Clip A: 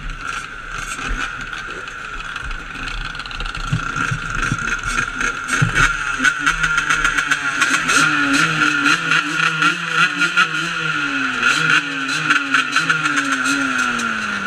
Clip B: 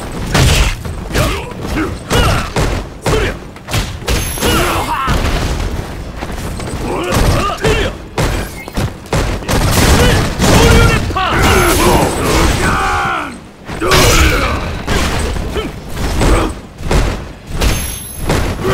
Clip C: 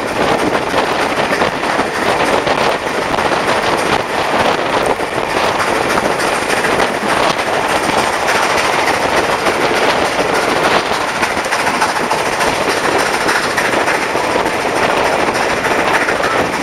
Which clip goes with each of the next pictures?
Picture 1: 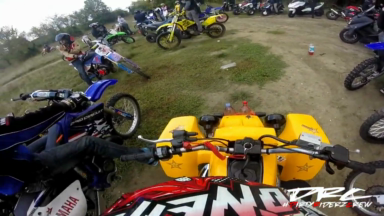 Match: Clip A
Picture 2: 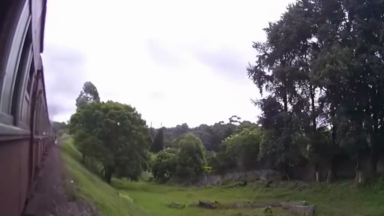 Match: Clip C